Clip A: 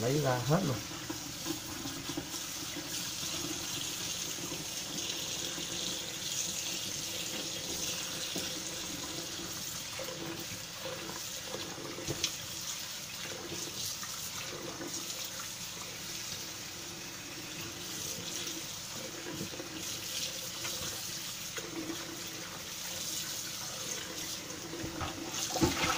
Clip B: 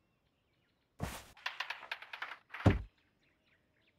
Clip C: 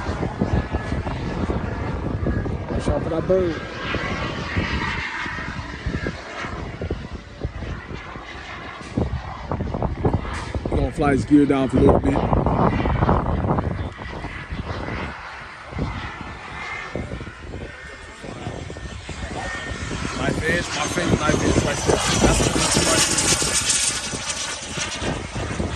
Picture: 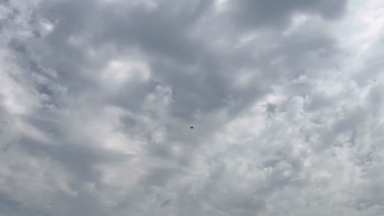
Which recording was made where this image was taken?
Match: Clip C